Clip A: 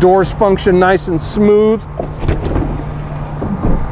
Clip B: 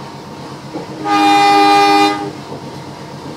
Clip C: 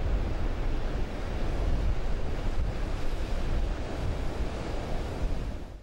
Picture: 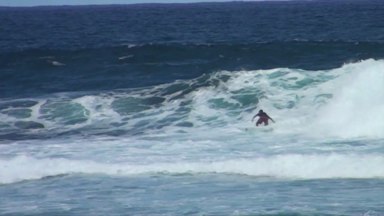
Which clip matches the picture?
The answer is C